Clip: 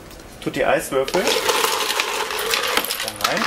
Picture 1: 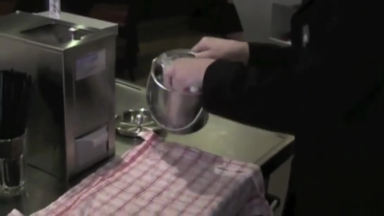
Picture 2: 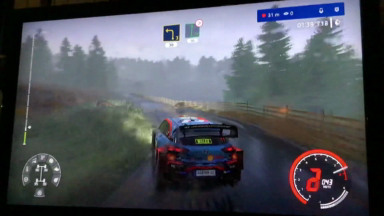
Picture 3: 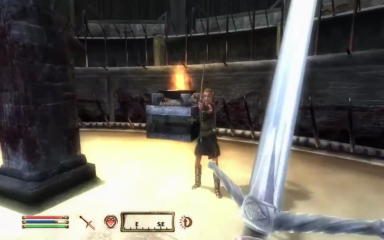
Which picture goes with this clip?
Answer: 1